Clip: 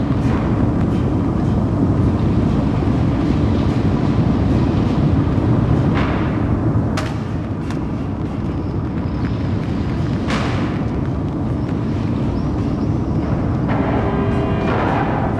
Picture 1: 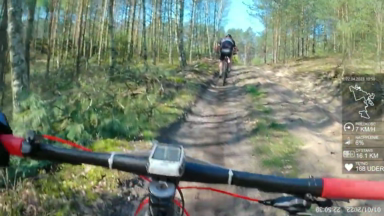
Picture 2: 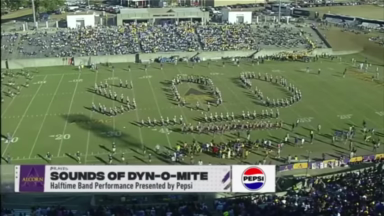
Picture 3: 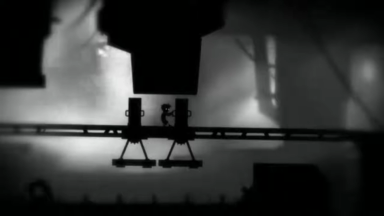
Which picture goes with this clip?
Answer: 3